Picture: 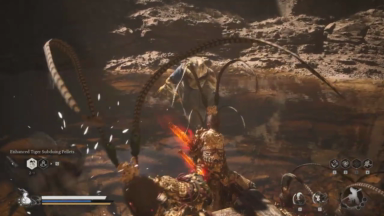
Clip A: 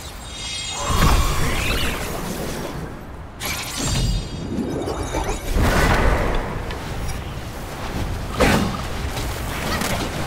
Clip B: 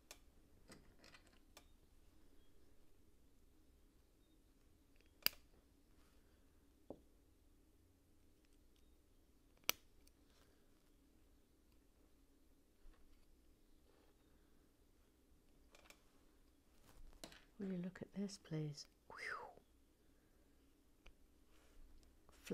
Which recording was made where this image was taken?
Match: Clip A